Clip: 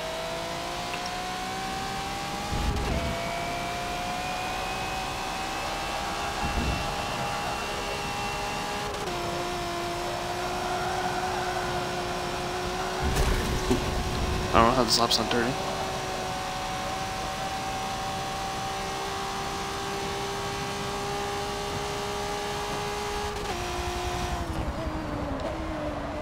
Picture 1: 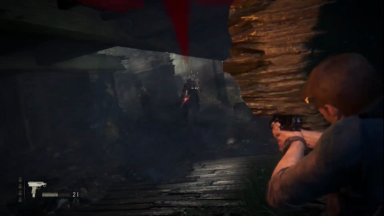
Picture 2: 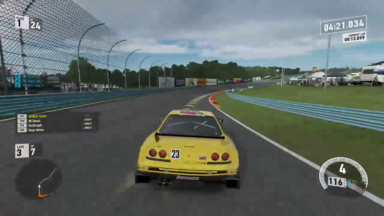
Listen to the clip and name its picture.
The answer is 2